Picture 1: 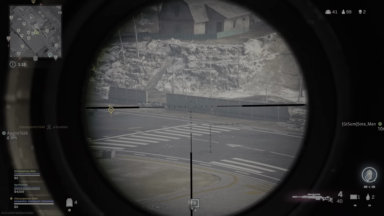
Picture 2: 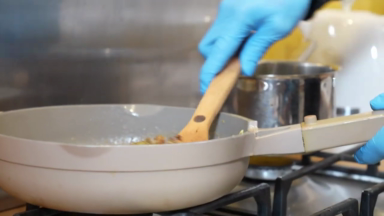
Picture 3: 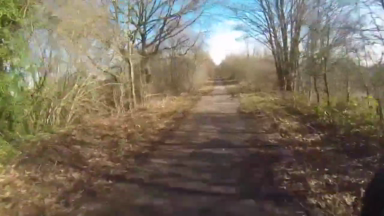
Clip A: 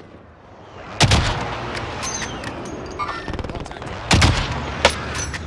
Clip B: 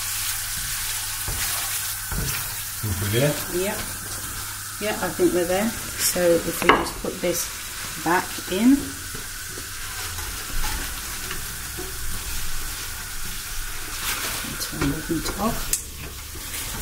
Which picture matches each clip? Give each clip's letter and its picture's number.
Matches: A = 1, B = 2